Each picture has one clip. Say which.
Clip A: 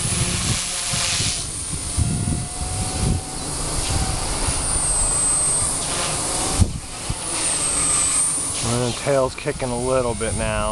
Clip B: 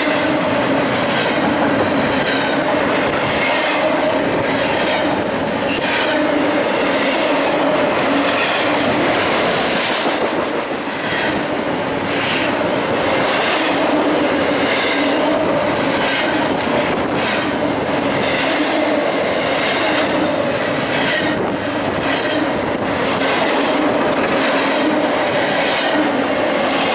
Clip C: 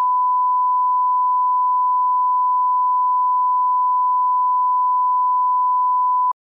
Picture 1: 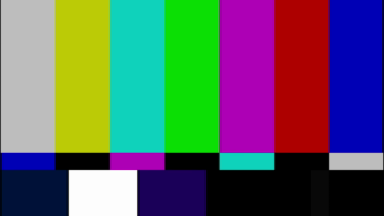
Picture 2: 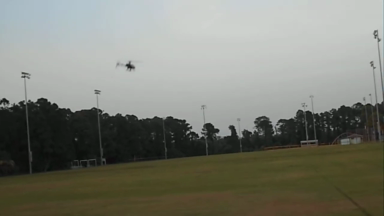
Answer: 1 C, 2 A